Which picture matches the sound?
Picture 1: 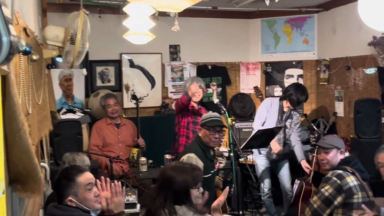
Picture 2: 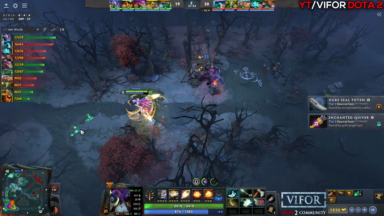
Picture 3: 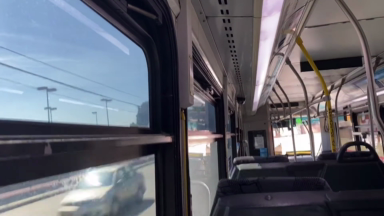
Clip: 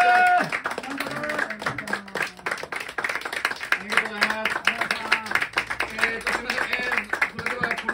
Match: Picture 1